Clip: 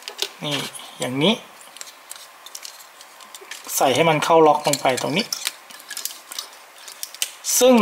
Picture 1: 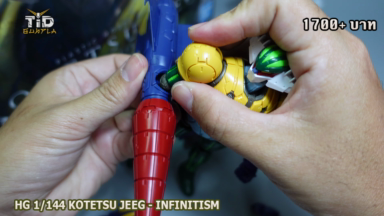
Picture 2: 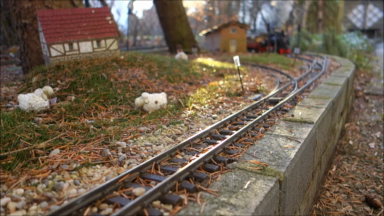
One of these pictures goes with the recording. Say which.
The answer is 1